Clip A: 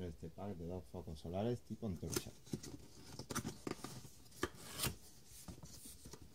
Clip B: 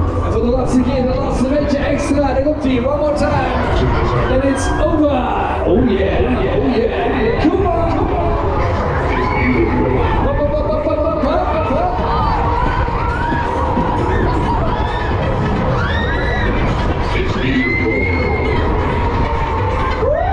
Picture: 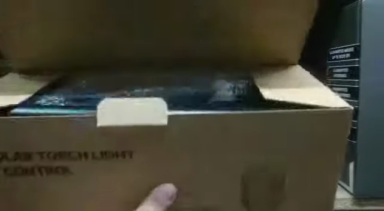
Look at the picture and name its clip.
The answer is A